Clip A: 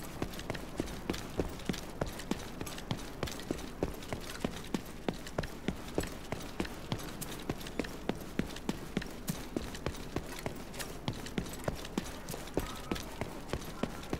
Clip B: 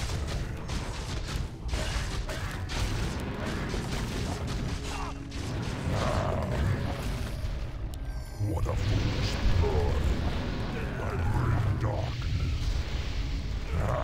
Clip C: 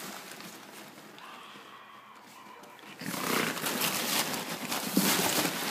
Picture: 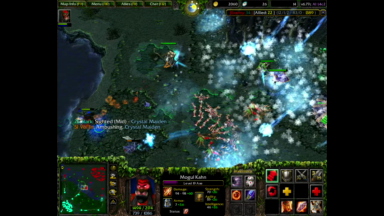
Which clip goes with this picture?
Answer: B